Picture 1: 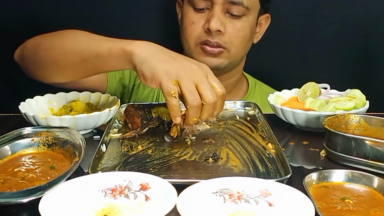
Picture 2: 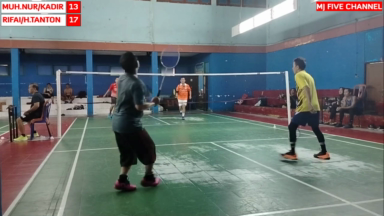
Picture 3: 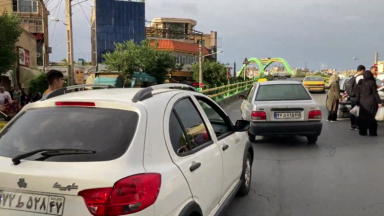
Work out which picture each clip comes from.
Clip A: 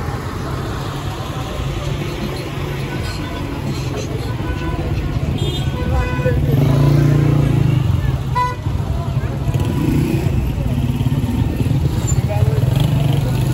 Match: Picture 3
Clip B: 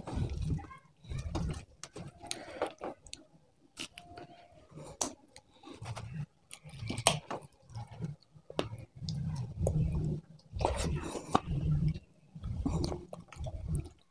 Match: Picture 1